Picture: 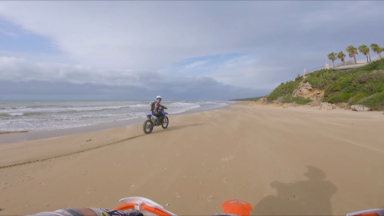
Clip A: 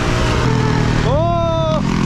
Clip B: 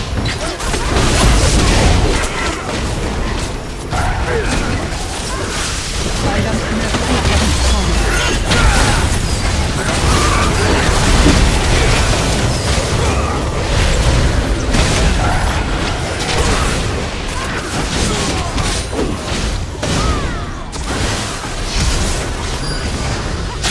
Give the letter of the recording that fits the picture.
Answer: A